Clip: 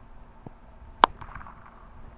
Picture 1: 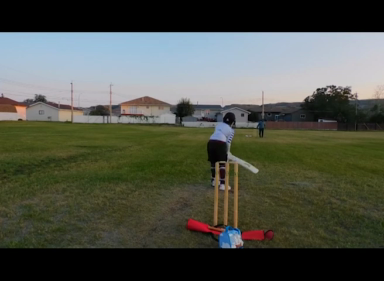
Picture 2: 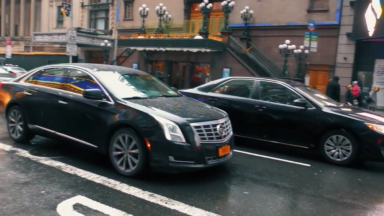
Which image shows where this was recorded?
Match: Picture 1